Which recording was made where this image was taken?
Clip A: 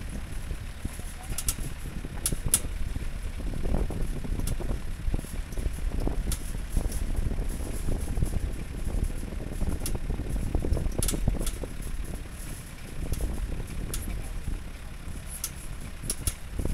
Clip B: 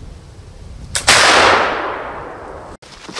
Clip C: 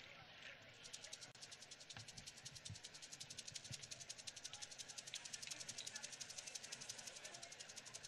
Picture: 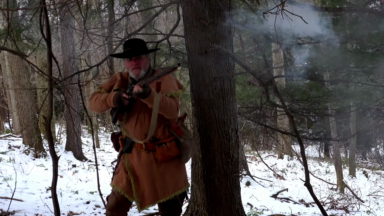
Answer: B